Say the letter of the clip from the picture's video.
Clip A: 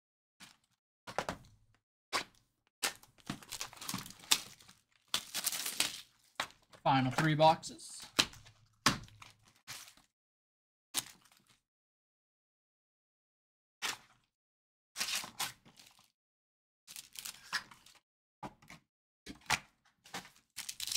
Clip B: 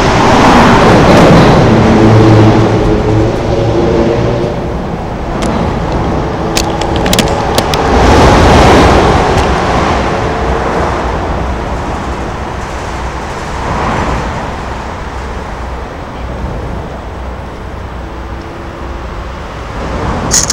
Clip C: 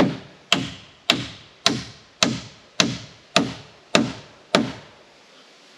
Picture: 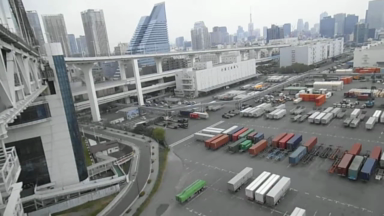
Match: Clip B